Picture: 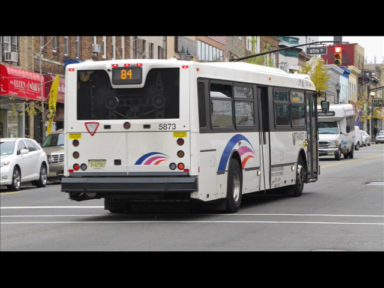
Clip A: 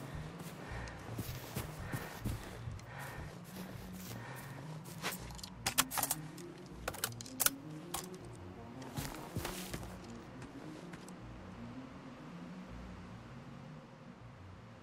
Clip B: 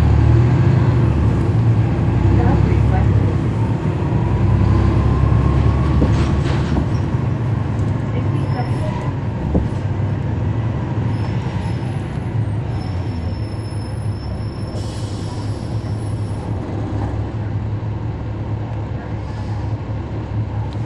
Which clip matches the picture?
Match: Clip B